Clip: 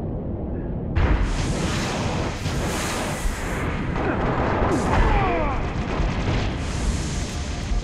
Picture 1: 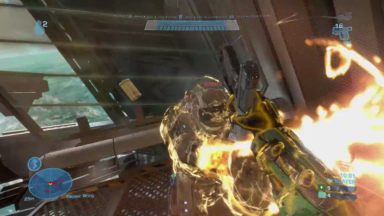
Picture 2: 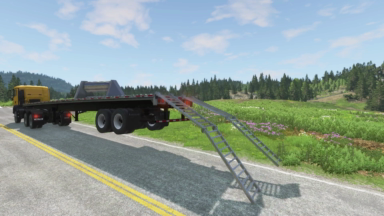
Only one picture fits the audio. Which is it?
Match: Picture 1